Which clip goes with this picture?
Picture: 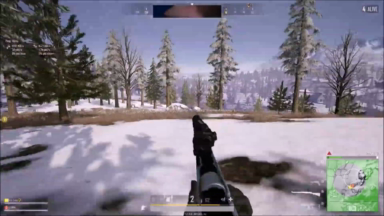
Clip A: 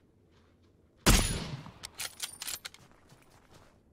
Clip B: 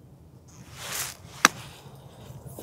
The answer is A